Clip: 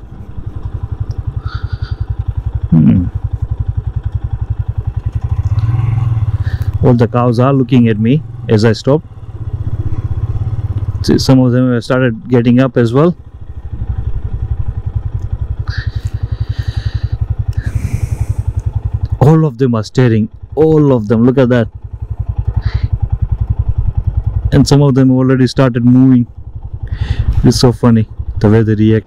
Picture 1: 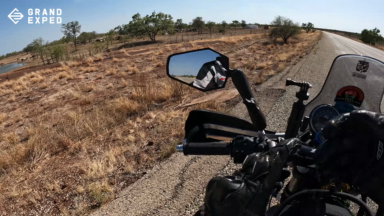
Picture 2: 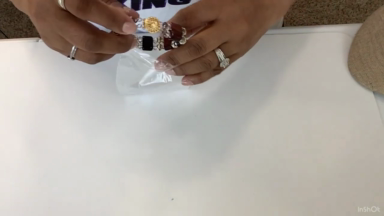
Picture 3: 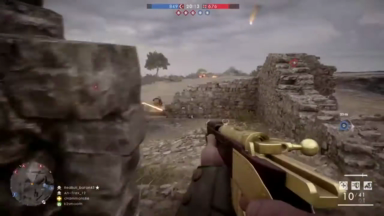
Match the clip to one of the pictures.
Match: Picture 1